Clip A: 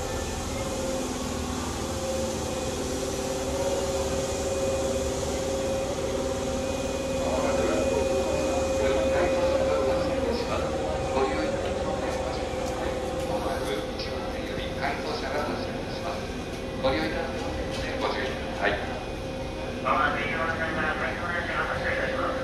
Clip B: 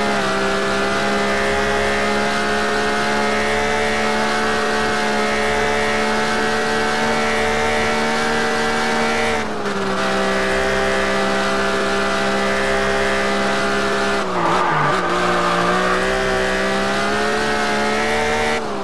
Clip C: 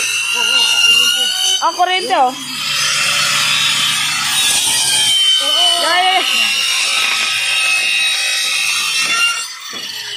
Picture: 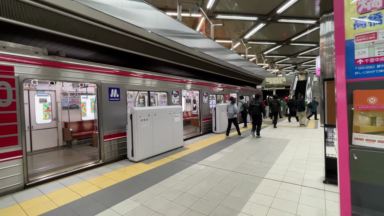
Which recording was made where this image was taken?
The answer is A